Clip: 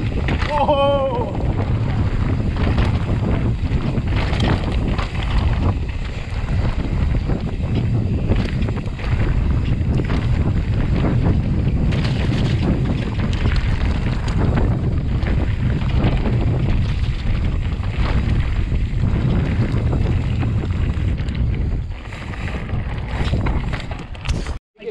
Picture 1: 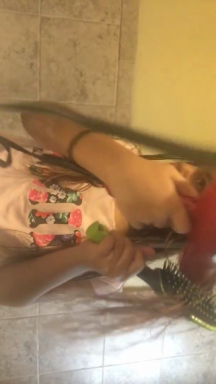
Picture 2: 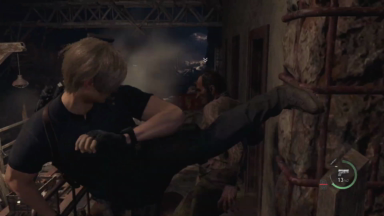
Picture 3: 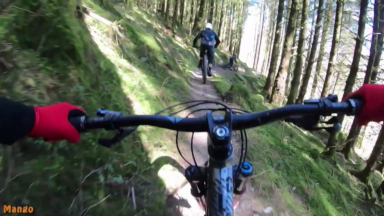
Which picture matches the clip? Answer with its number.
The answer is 3